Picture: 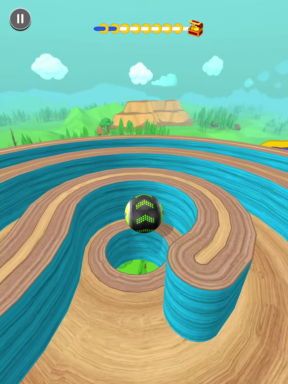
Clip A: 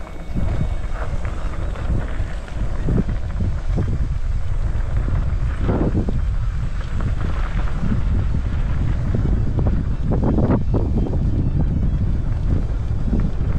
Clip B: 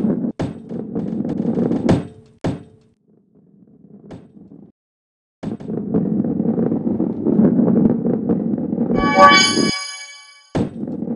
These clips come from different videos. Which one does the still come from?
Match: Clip B